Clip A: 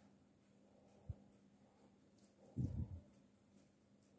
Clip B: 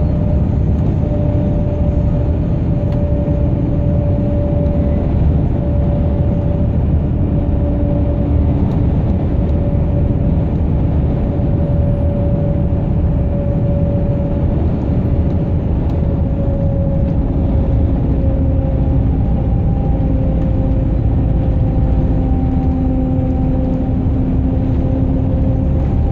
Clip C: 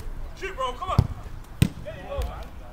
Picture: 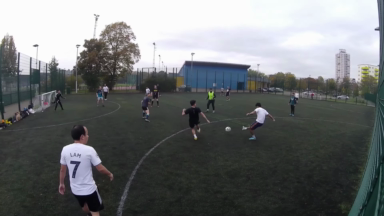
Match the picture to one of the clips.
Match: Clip C